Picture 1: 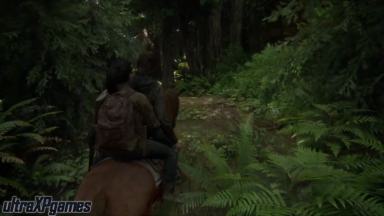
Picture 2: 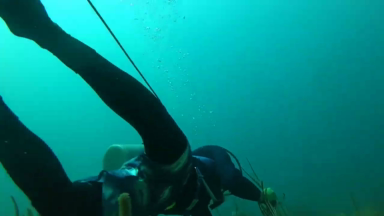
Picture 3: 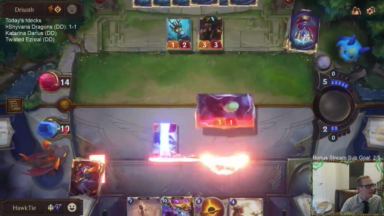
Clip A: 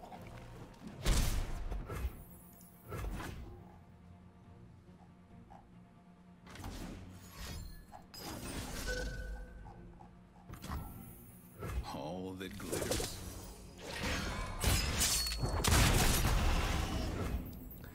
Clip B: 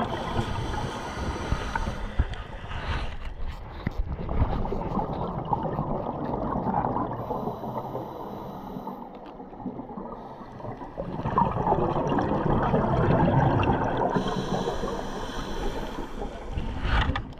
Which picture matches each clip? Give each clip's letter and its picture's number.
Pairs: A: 3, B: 2